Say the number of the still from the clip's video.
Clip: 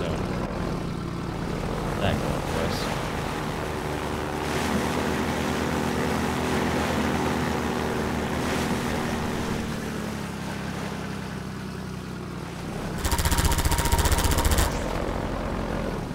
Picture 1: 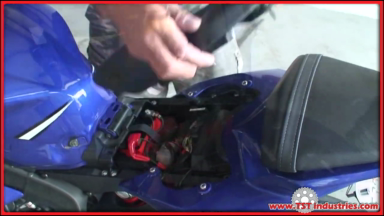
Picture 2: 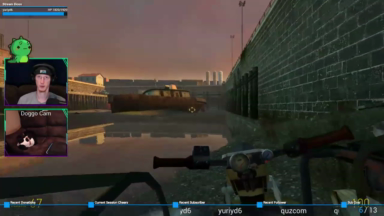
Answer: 2